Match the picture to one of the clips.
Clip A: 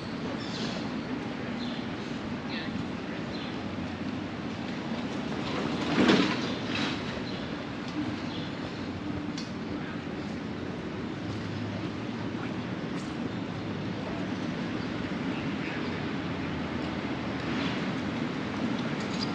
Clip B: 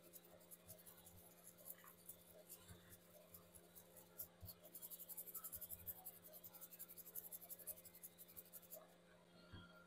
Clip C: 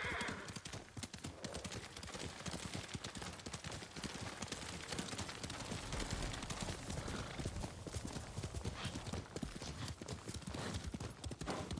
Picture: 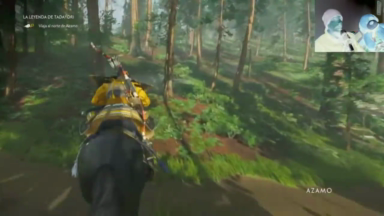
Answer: C